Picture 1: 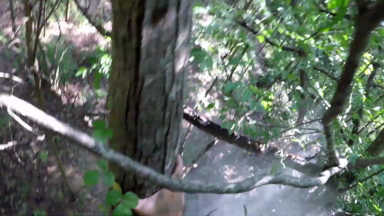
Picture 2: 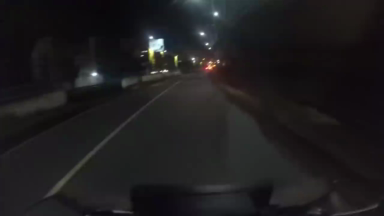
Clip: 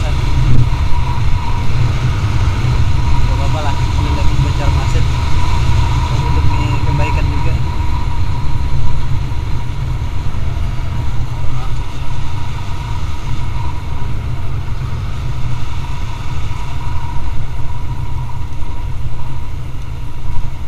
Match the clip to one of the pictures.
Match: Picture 2